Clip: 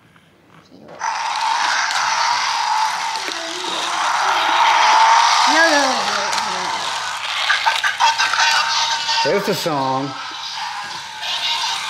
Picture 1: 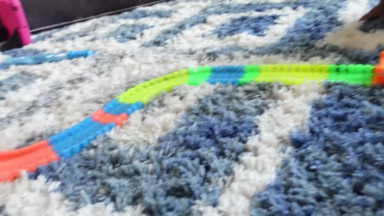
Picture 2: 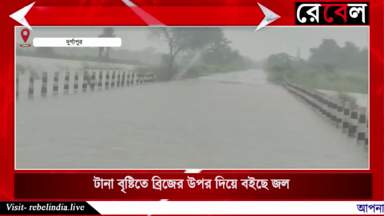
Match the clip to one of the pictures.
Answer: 1